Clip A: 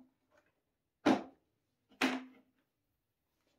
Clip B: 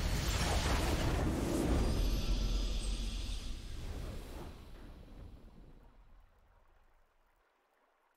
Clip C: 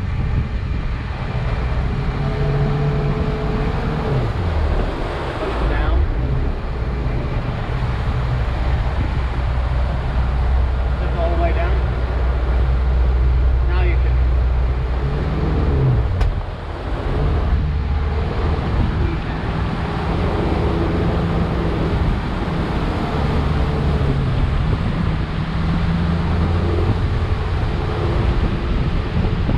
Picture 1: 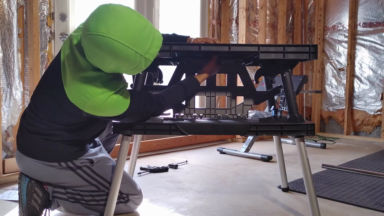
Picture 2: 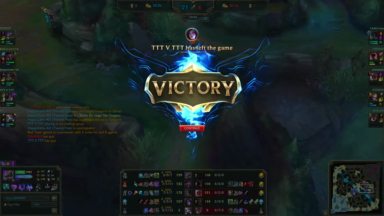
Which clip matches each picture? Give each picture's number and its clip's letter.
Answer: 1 A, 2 B